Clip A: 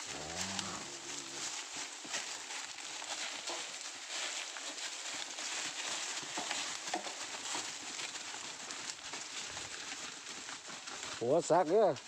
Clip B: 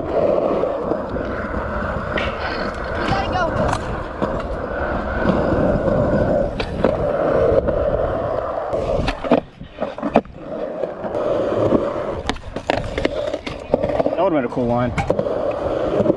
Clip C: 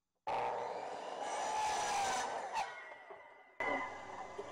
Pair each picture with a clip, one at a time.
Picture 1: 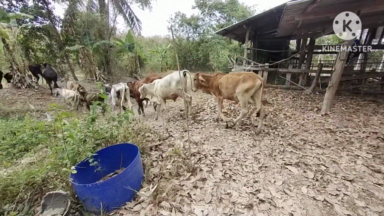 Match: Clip A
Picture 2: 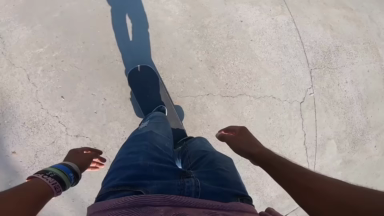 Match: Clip B